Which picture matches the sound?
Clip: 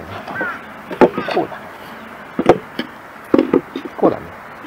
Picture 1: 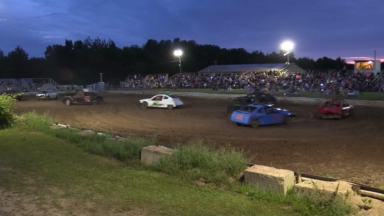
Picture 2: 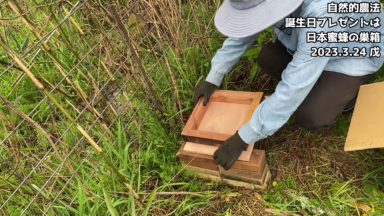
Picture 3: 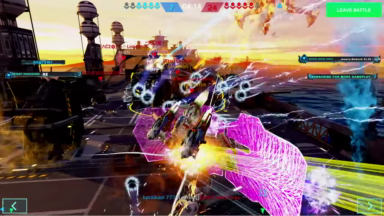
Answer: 2